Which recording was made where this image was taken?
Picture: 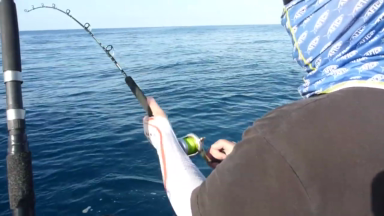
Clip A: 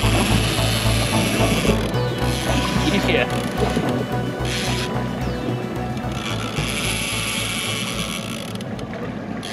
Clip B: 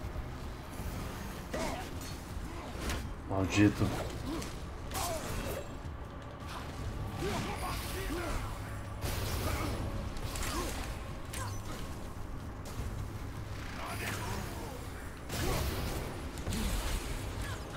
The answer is A